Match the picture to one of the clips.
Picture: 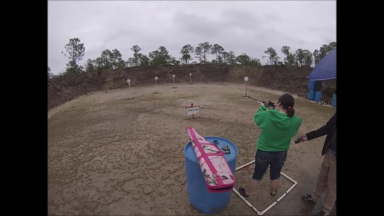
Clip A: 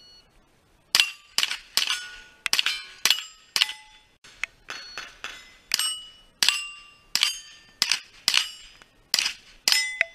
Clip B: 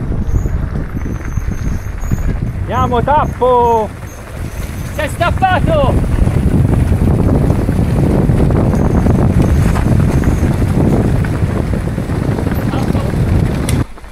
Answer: A